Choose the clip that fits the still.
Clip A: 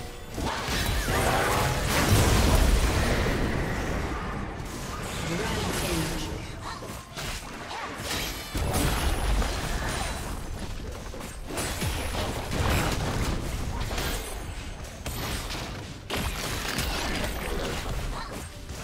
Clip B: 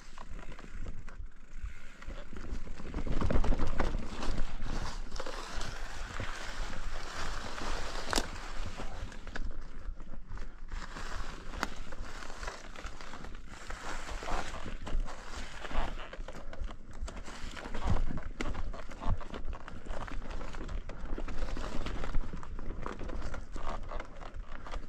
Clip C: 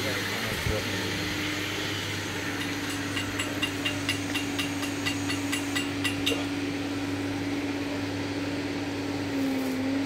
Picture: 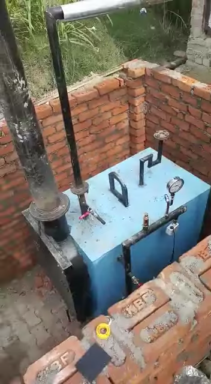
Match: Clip C